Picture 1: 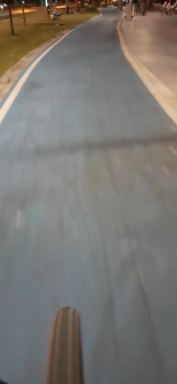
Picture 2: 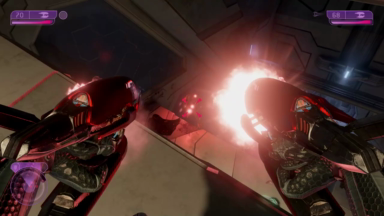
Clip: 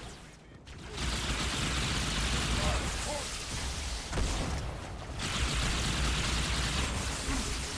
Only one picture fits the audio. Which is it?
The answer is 2